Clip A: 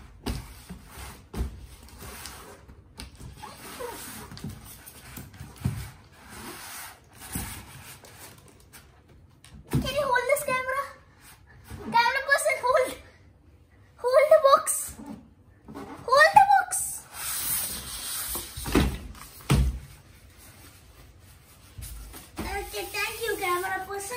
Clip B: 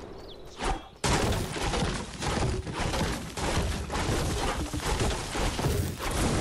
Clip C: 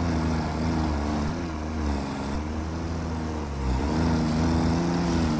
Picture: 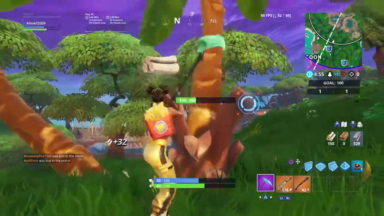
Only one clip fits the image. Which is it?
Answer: B